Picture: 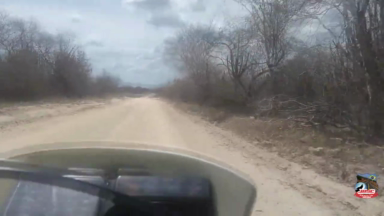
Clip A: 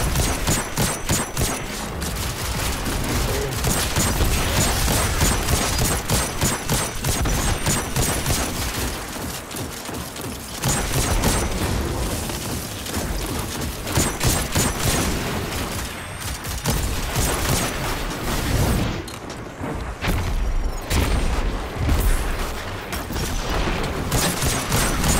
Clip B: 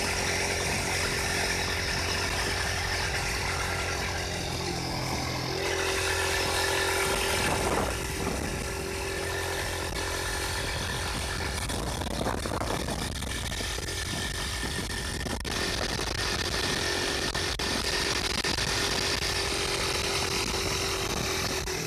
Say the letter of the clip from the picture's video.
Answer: B